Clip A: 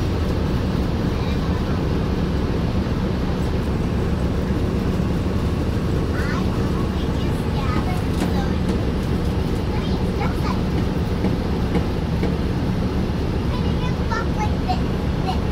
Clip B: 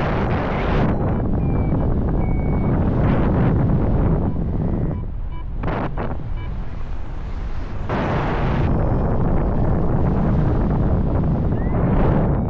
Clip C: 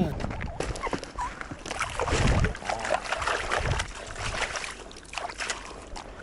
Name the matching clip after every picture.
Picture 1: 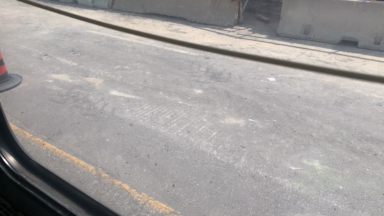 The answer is A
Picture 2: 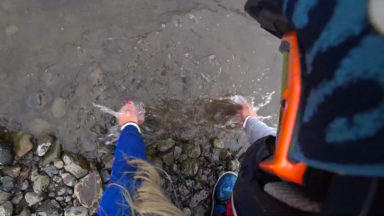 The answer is C